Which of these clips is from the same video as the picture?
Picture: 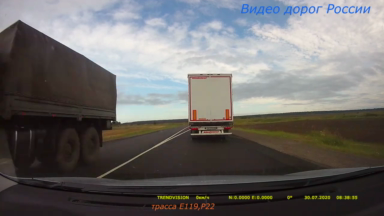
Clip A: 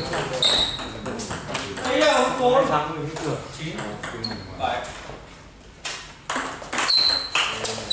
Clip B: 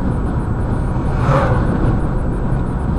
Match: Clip B